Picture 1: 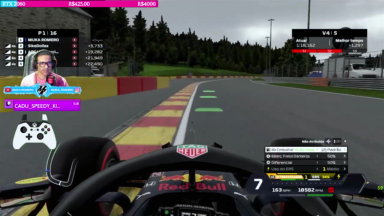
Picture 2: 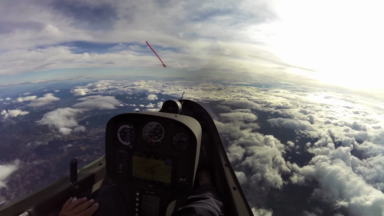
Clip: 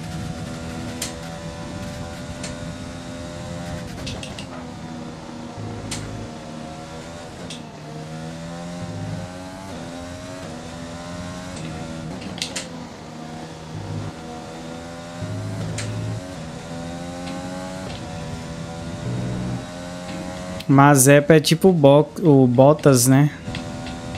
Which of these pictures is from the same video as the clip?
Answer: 1